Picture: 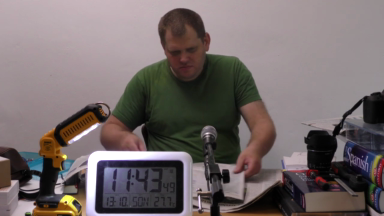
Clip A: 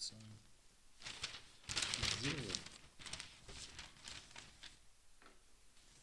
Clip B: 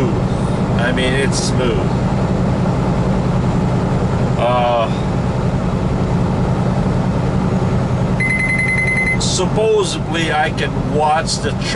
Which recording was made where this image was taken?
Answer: A